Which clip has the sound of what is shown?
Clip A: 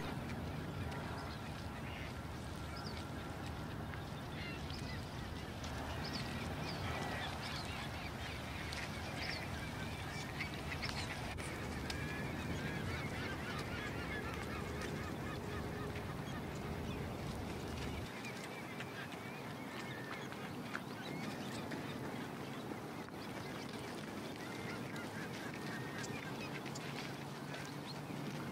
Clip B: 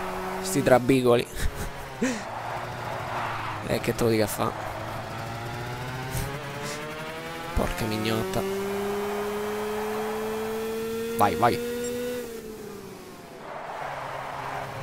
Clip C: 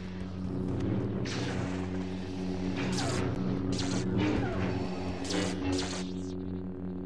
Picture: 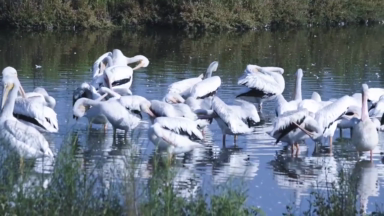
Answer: A